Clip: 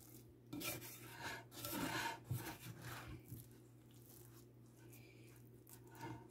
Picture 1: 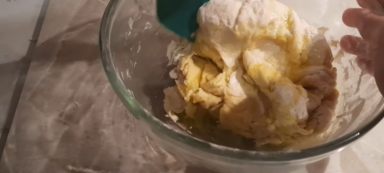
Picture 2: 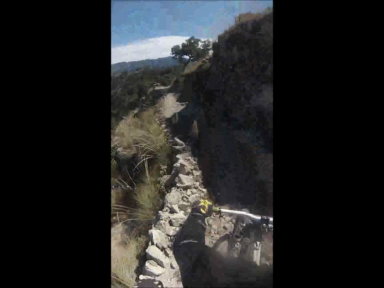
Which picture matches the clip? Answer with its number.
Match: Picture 1